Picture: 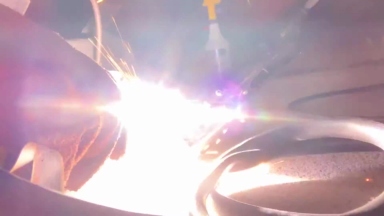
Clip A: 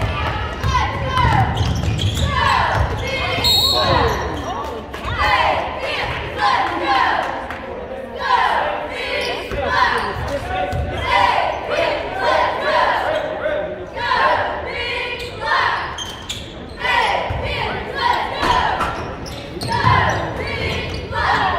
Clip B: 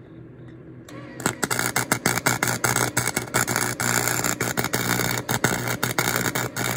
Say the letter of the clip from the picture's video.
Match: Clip B